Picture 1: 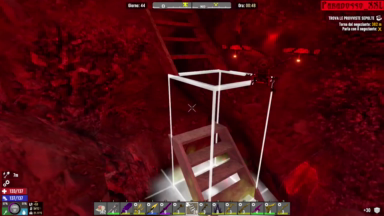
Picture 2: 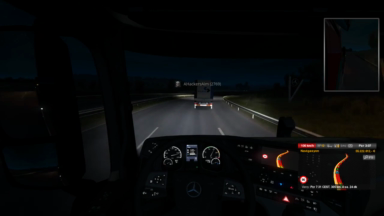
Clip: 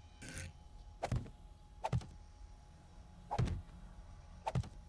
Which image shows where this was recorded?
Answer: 1